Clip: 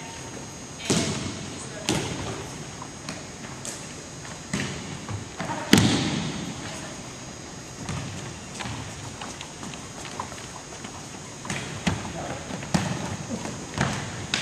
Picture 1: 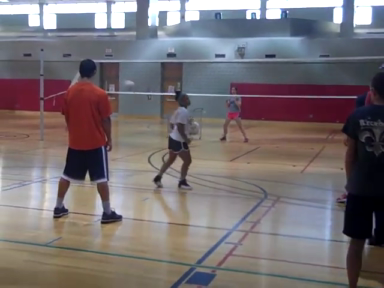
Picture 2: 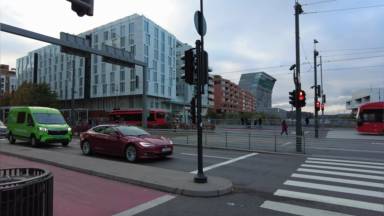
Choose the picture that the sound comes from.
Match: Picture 1